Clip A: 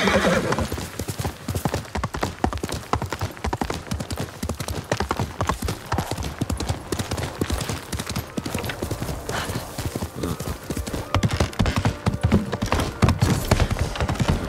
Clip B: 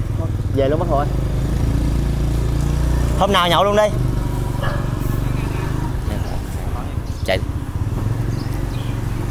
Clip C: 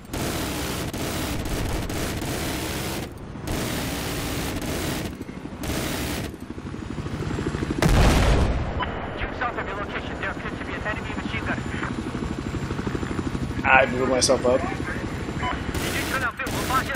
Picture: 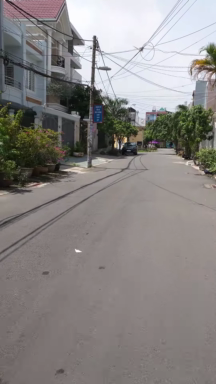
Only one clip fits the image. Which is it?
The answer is B